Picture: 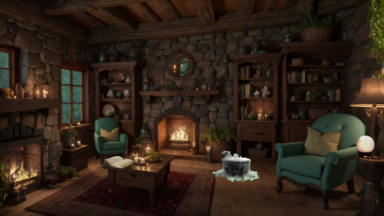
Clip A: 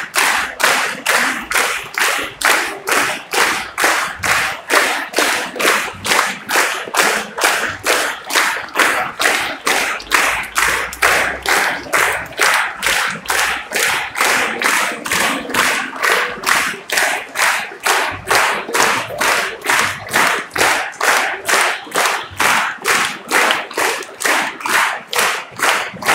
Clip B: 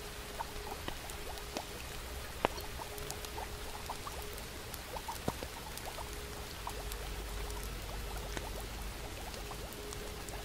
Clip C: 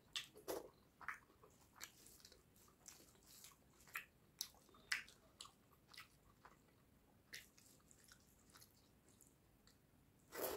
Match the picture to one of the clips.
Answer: B